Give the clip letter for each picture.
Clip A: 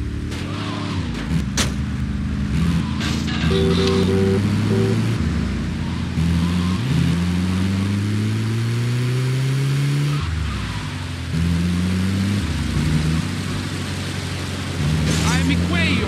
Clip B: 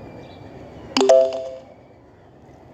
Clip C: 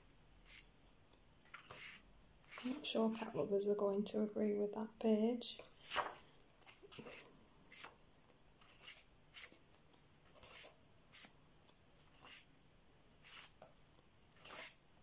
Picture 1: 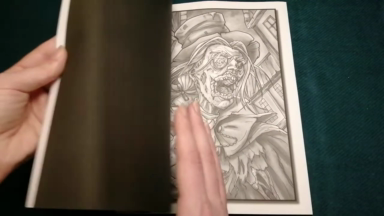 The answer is C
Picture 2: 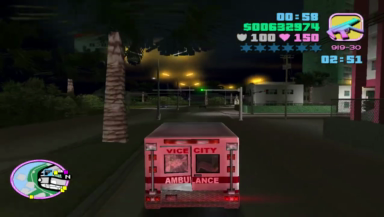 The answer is A